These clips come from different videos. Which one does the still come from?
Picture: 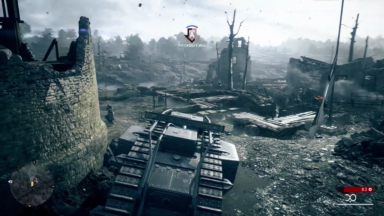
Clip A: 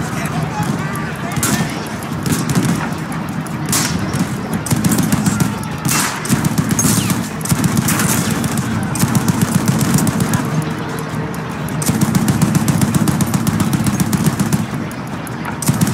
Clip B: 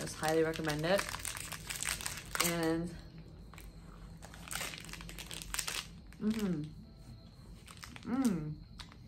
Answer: A